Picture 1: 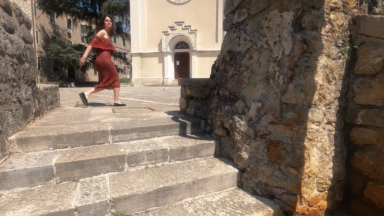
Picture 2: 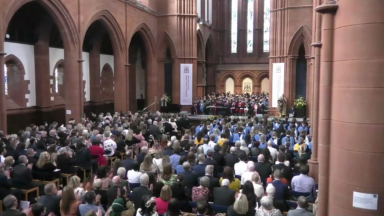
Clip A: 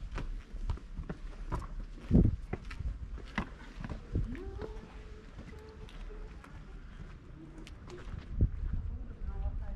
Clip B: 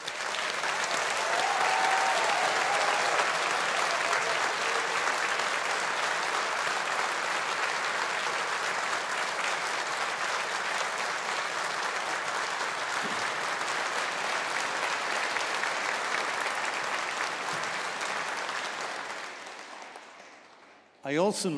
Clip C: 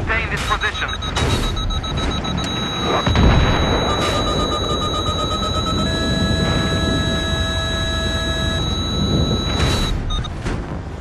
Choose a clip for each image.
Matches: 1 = A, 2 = B